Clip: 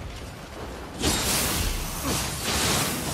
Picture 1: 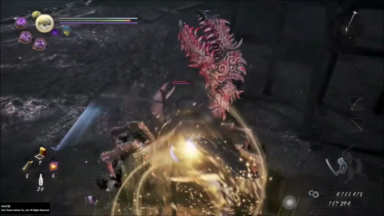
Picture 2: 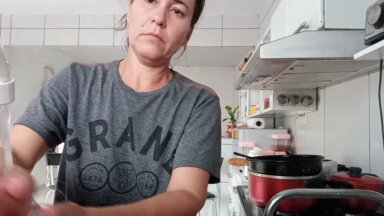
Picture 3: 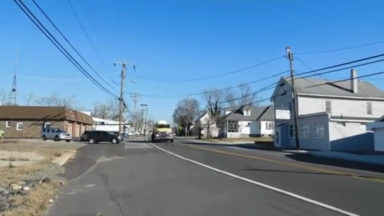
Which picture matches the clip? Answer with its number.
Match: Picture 1